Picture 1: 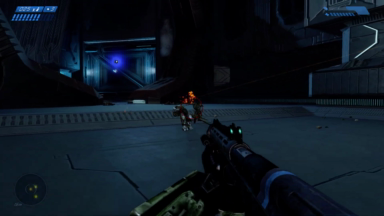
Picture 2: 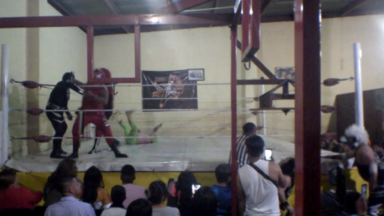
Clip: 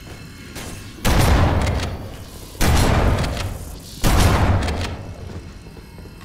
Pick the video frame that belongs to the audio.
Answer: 1